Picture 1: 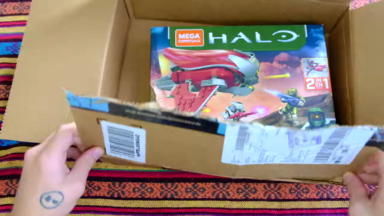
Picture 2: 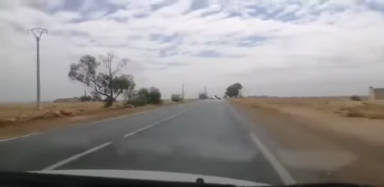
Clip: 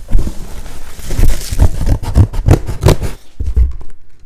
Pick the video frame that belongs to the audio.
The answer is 1